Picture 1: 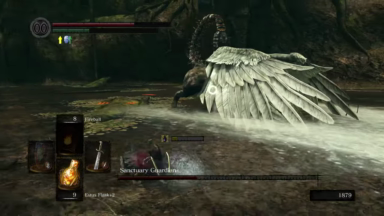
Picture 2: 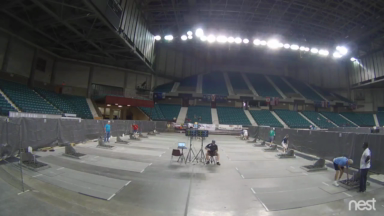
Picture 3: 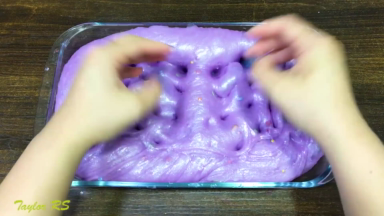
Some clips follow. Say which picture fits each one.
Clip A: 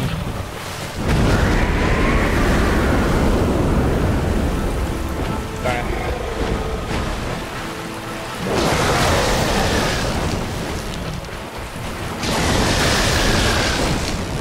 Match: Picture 1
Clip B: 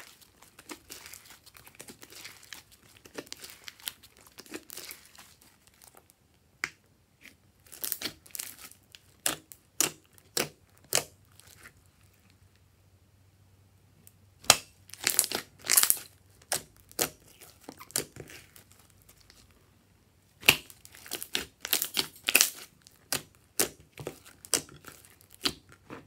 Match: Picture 3